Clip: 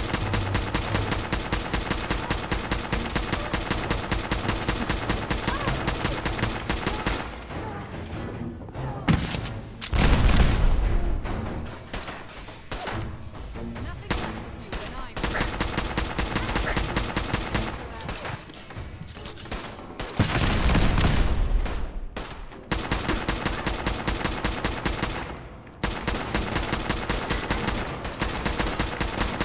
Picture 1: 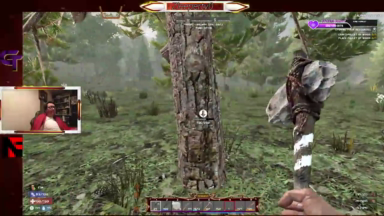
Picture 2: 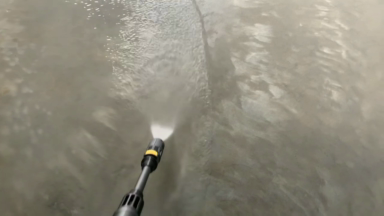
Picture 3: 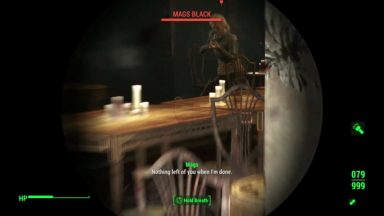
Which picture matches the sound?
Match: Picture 3